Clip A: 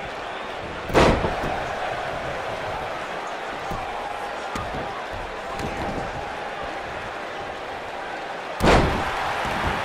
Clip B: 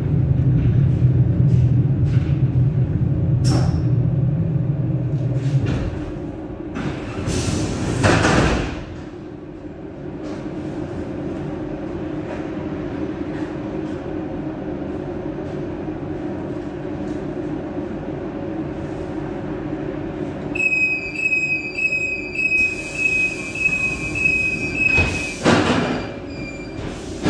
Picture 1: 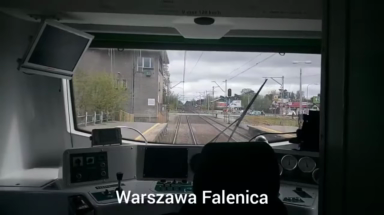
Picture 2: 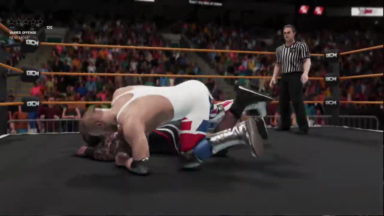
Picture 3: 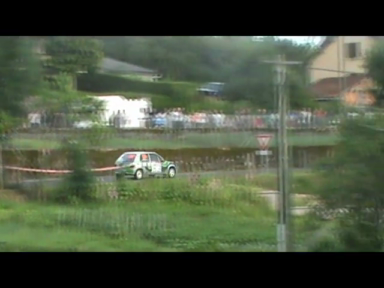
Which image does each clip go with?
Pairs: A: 2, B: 1